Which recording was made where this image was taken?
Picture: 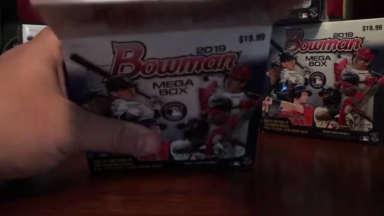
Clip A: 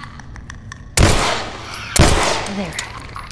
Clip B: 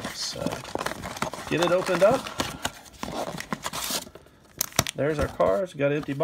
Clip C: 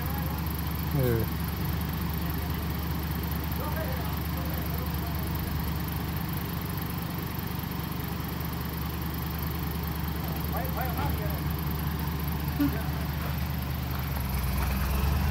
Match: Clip B